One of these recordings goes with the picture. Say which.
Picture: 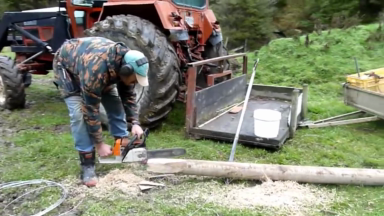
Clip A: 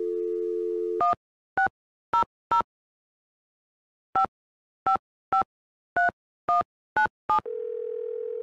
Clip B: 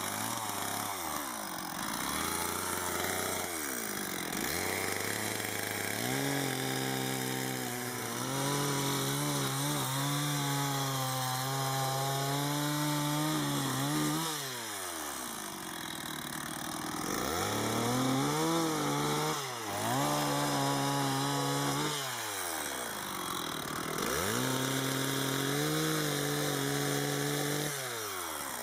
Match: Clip B